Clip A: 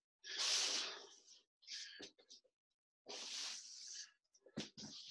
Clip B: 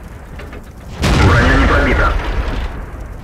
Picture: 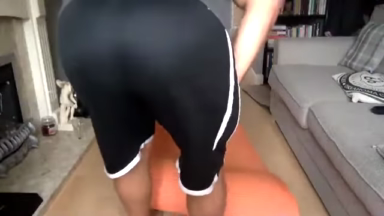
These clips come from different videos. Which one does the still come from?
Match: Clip A